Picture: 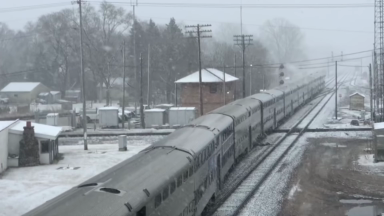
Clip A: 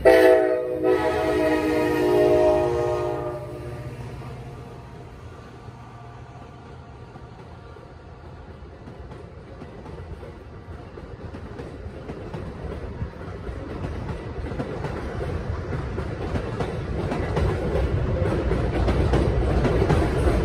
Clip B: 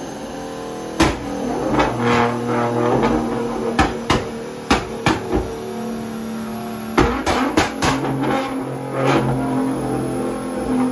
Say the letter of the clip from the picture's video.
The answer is A